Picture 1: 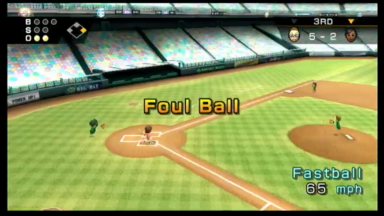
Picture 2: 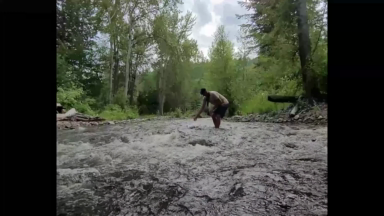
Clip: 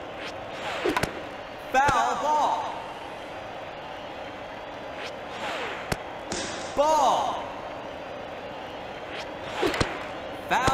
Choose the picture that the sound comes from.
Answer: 1